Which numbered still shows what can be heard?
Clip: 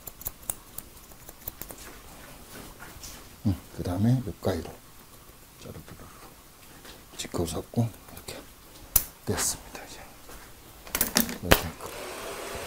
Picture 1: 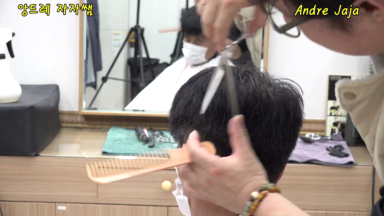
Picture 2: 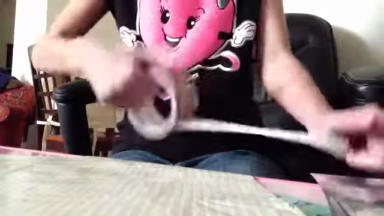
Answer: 1